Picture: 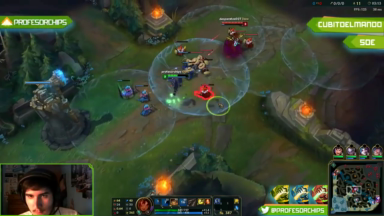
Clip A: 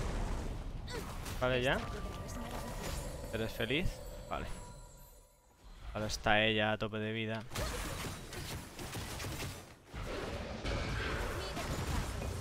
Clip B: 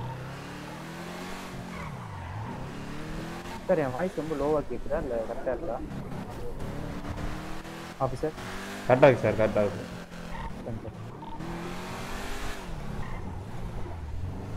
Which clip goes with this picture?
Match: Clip A